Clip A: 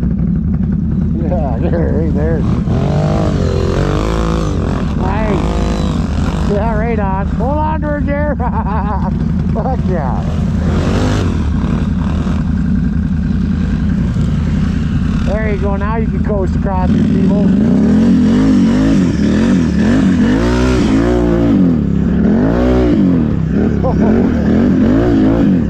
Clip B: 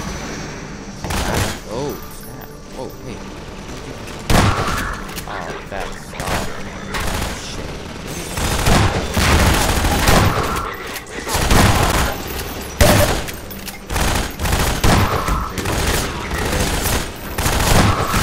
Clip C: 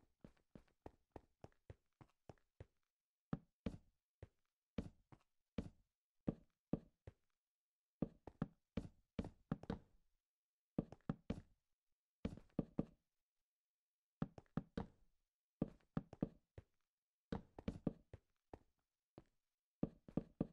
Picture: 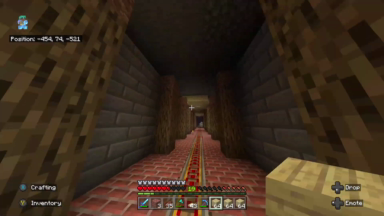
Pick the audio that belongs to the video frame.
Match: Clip C